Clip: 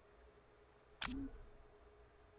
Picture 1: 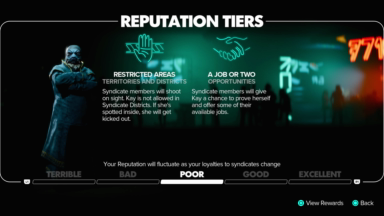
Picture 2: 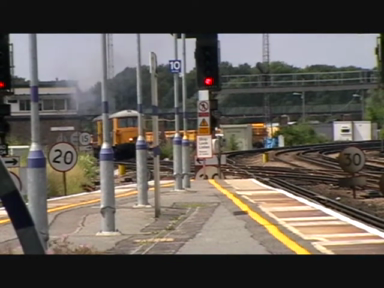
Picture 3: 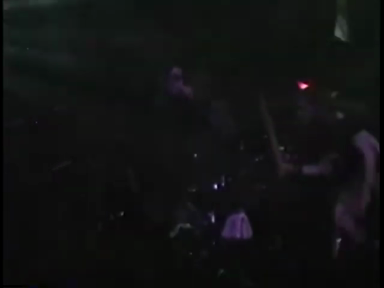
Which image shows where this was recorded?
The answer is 1